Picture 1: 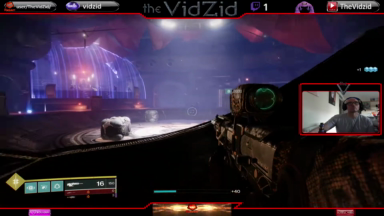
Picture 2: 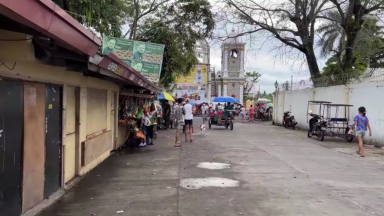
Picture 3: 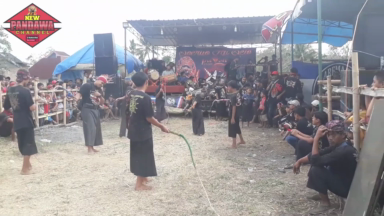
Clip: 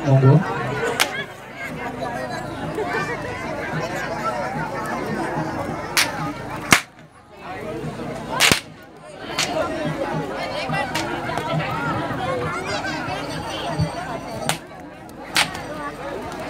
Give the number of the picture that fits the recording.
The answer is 3